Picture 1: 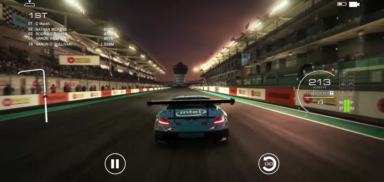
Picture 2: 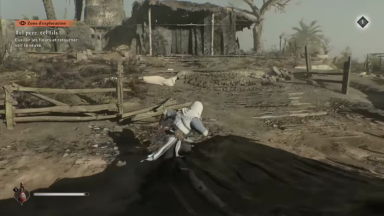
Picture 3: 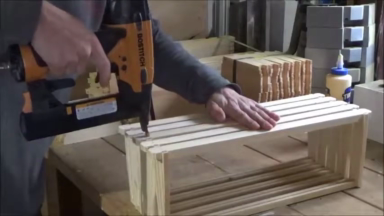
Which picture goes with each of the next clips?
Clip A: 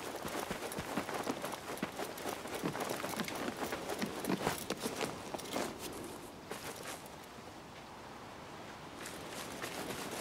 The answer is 2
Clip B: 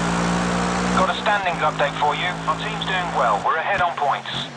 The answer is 1